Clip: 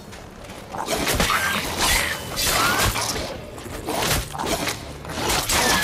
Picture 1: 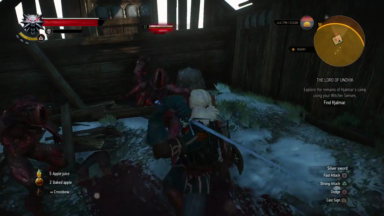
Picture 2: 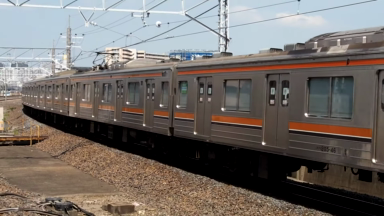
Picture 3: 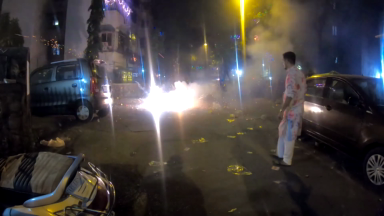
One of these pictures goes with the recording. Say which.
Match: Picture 1